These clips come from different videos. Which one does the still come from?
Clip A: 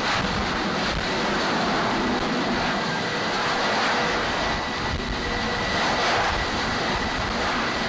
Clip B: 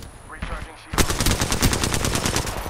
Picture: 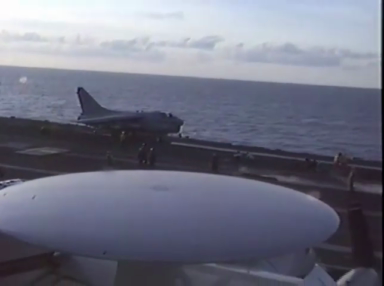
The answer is A